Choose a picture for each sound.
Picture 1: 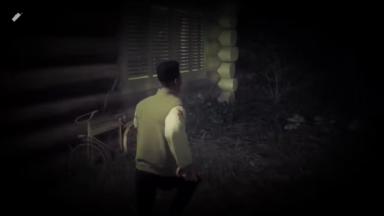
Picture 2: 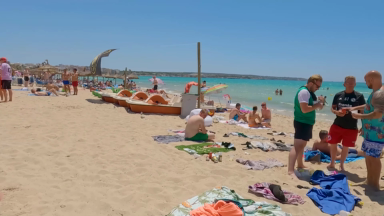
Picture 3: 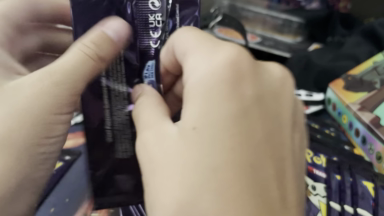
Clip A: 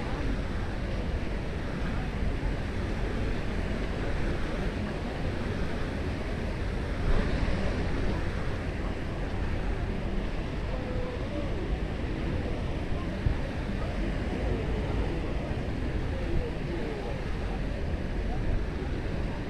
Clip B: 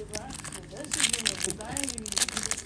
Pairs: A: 2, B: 3